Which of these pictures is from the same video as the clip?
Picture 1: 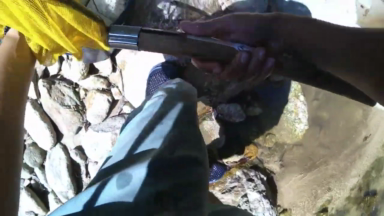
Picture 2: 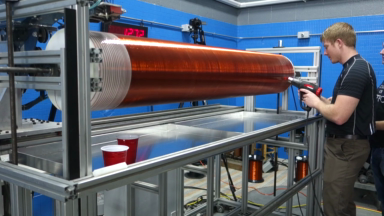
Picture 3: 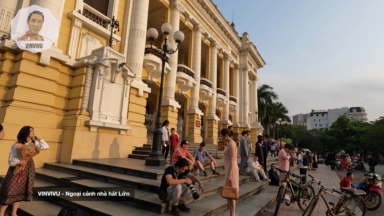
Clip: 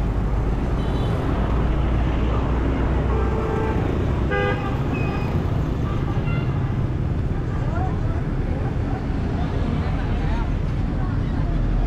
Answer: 3